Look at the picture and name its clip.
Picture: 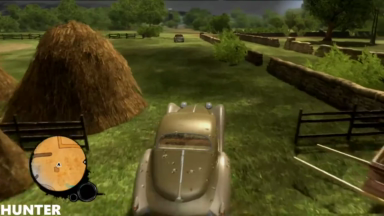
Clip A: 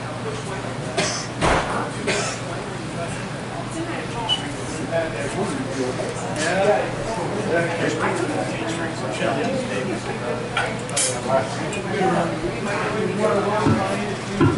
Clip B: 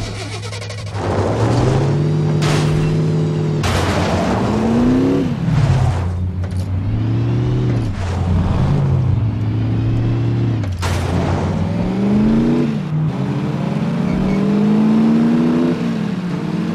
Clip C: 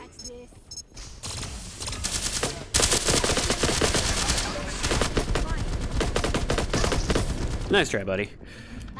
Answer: B